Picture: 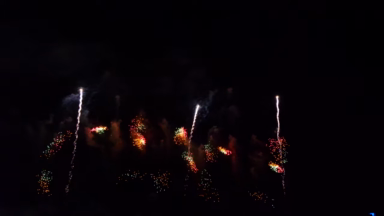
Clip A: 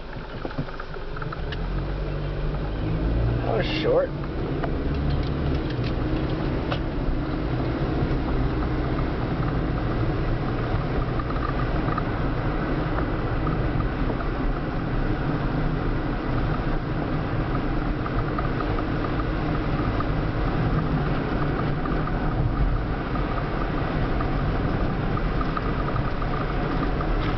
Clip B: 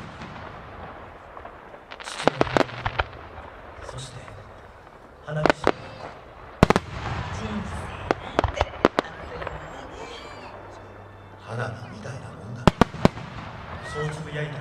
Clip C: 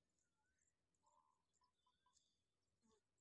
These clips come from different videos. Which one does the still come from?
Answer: B